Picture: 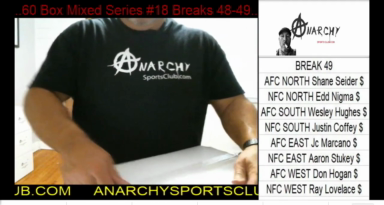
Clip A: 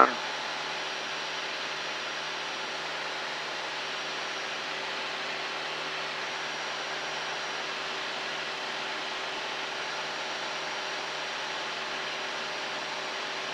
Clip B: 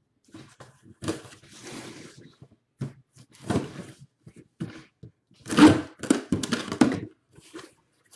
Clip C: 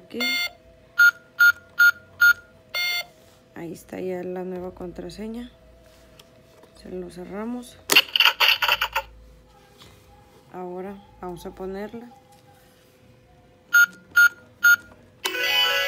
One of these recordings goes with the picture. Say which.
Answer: B